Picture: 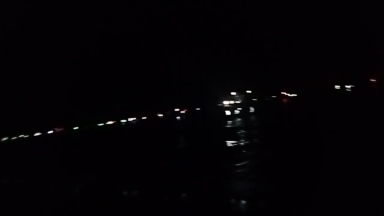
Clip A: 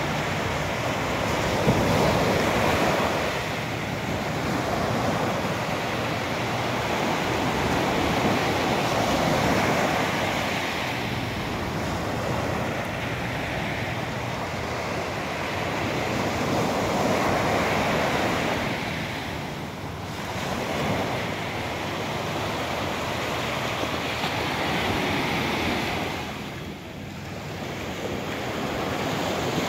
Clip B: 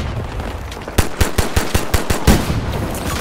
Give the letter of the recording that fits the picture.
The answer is A